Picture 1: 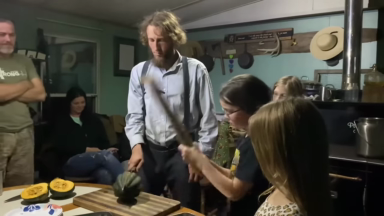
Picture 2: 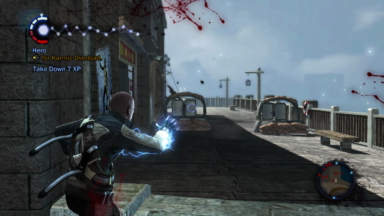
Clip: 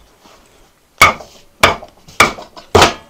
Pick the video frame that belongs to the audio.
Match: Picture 1